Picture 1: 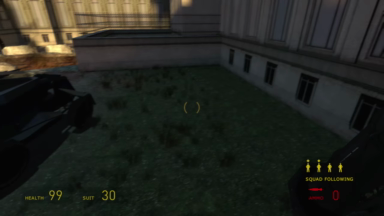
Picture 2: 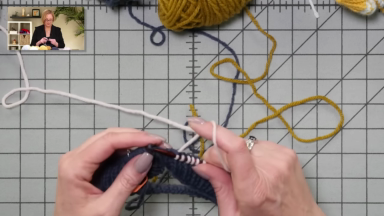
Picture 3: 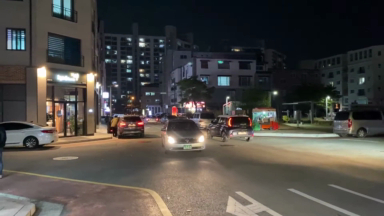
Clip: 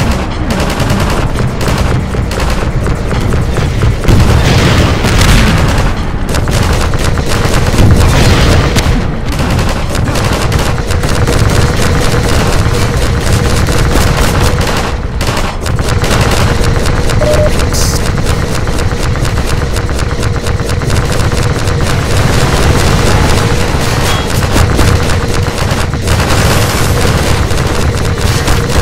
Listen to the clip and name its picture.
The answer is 1